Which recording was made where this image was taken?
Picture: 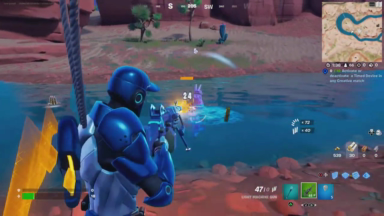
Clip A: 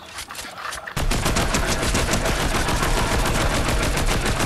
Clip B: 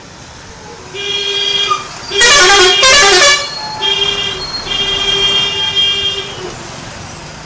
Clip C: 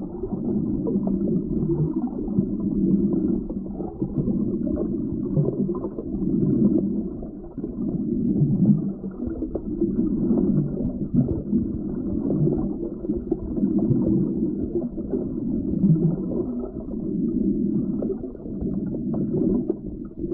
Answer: A